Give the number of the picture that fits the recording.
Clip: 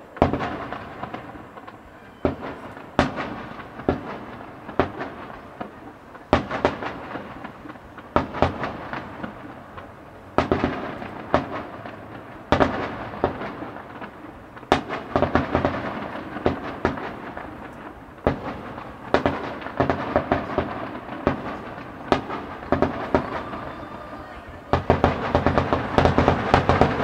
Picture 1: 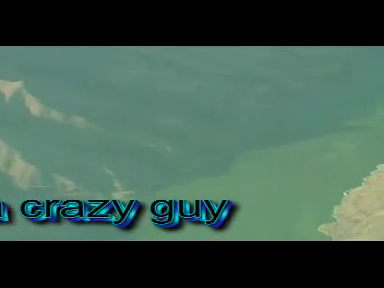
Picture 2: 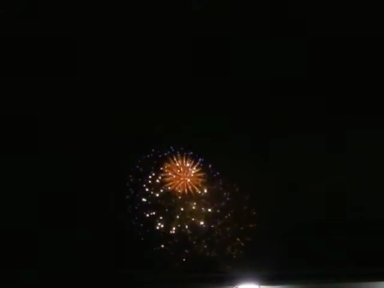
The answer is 2